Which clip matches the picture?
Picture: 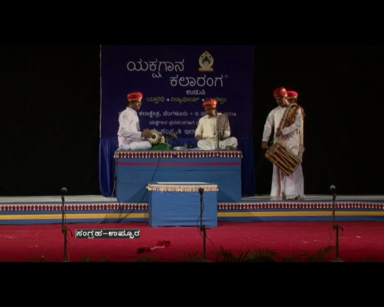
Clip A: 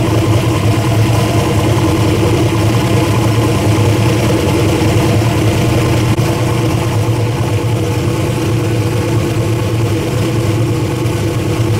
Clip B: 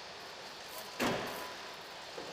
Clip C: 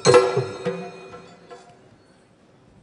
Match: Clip C